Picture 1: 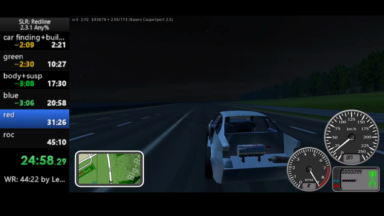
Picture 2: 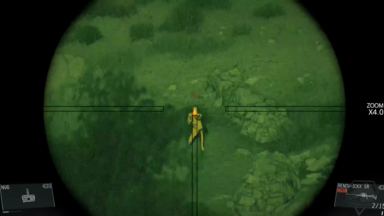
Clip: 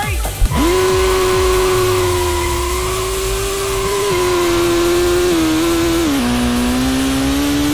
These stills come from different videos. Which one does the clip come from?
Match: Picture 1